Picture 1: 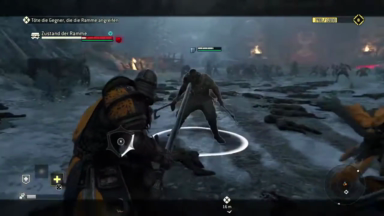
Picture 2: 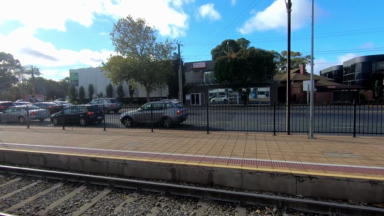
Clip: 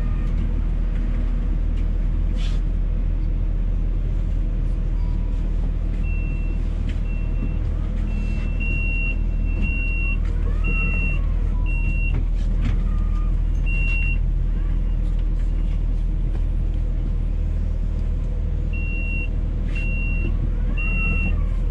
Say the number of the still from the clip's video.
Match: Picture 2